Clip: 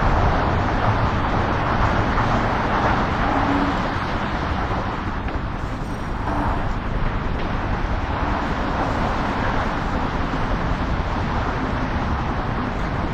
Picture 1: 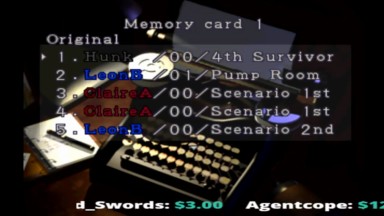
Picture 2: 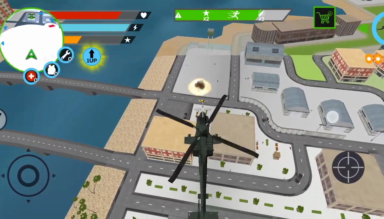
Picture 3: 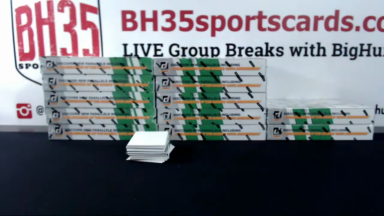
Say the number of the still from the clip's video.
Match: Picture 2